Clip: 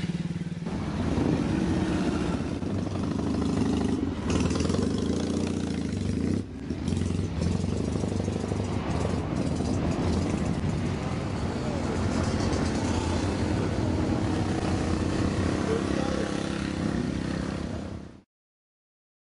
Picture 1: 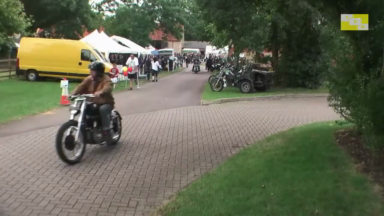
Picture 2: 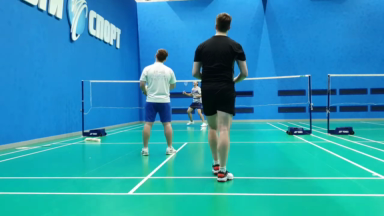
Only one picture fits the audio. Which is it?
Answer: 1